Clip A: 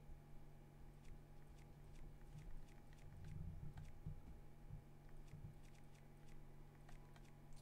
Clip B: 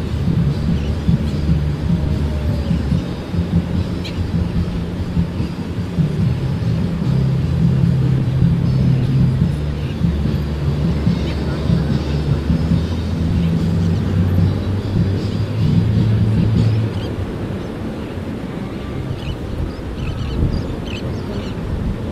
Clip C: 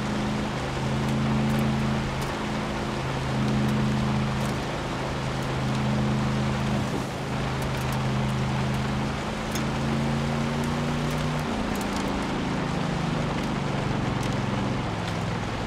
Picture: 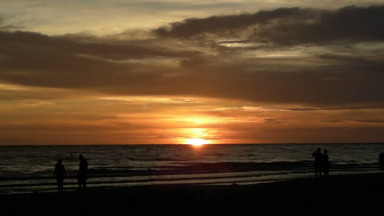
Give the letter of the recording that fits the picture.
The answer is B